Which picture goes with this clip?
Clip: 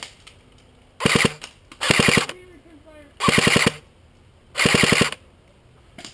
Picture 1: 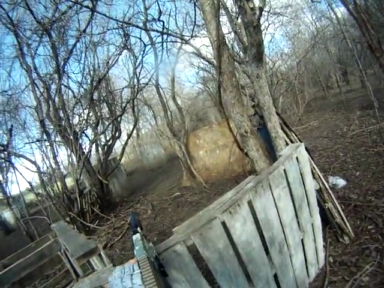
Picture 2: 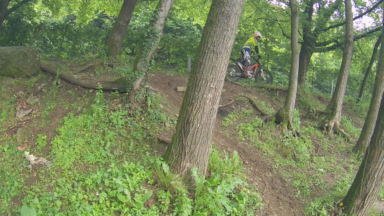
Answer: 1